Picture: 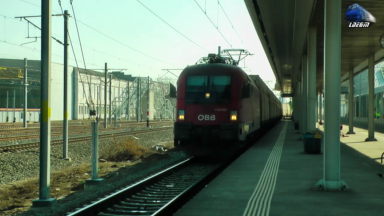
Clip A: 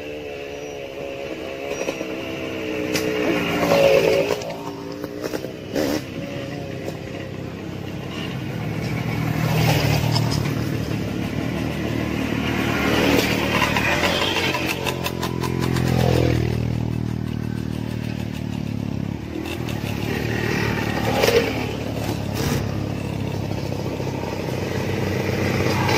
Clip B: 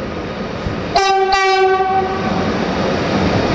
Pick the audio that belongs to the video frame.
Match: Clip B